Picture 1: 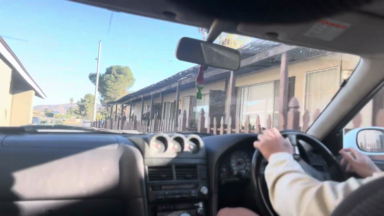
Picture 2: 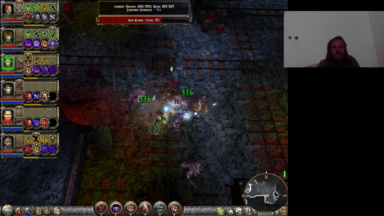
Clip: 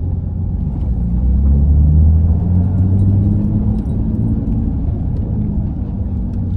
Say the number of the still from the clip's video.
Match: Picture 1